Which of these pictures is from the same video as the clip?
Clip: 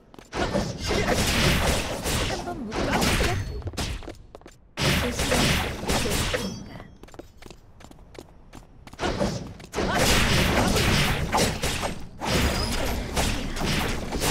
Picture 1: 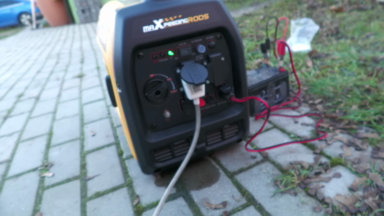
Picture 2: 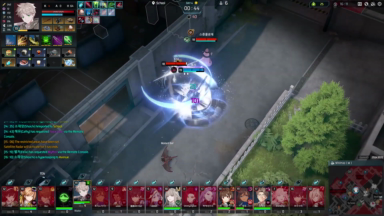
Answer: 2